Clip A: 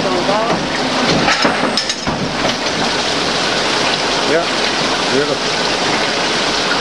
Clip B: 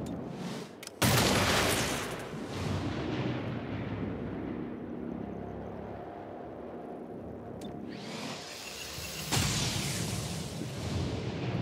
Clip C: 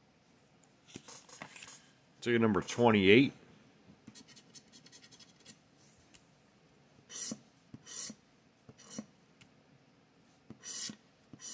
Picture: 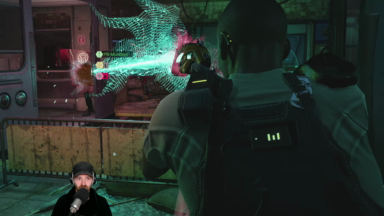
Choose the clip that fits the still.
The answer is B